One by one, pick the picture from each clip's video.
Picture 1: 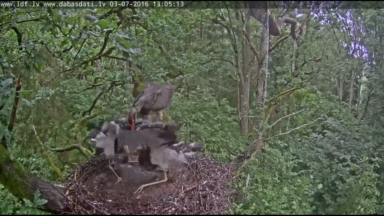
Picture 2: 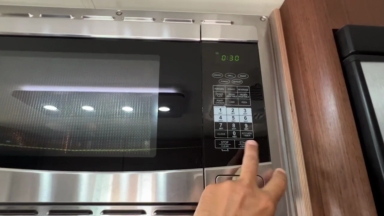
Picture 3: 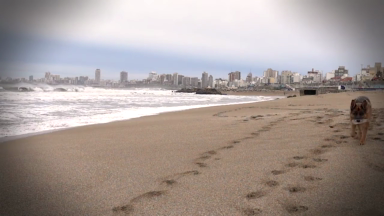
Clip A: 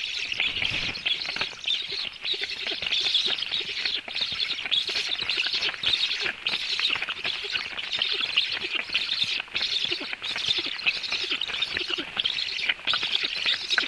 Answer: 1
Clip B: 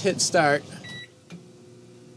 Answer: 2